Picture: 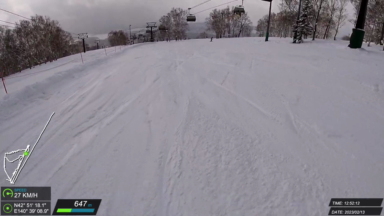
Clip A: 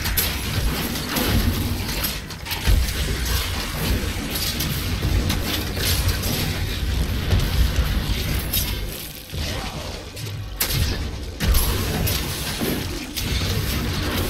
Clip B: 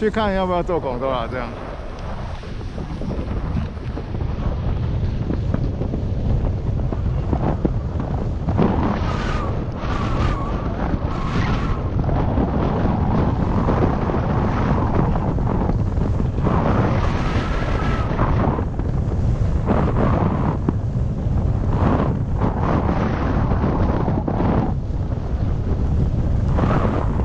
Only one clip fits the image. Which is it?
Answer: B